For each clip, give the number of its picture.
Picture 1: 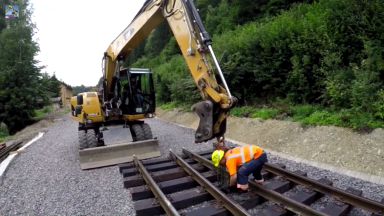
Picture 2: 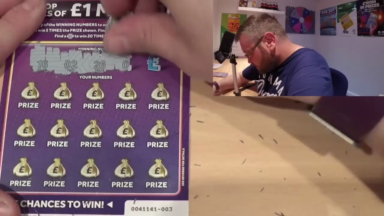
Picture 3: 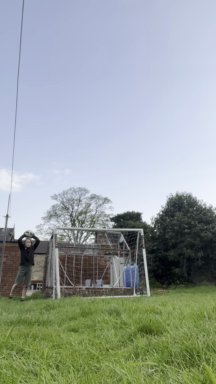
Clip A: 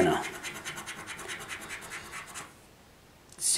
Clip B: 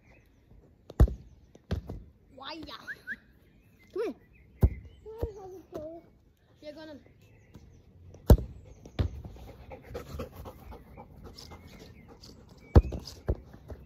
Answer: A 2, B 3